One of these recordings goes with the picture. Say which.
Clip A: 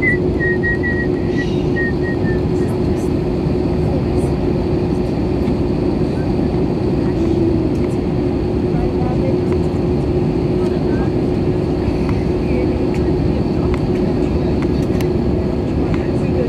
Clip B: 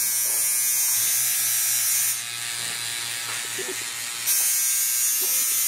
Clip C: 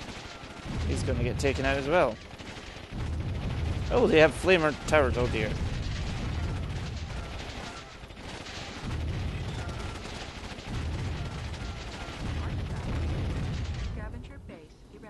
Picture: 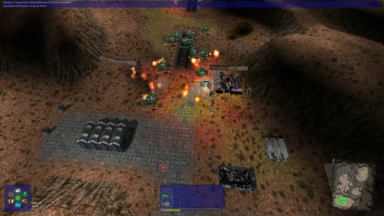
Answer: C